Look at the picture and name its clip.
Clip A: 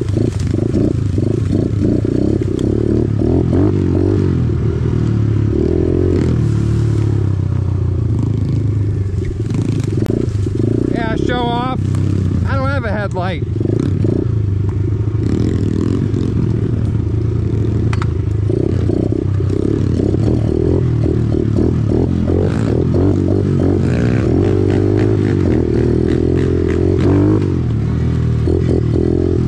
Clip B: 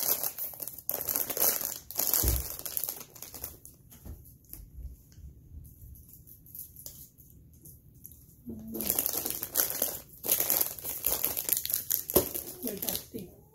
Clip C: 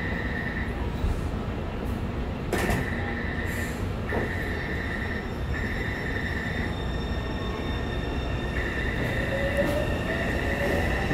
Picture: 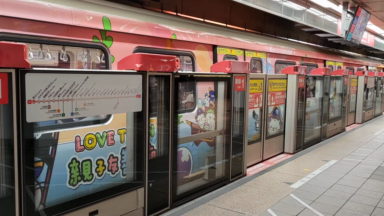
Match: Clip C